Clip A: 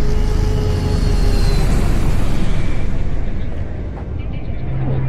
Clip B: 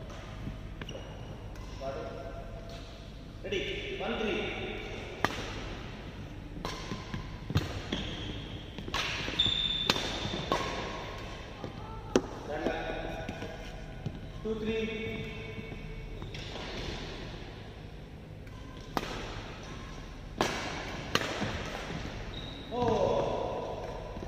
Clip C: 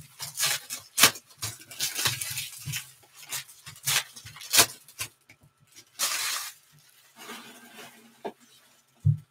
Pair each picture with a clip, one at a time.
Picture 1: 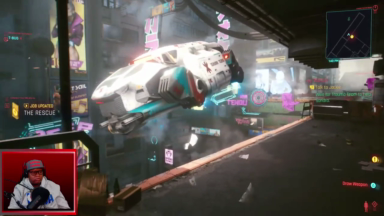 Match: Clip A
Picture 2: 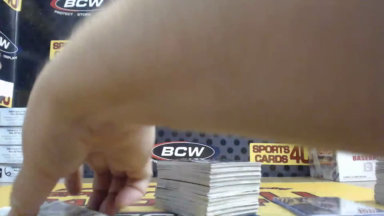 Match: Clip C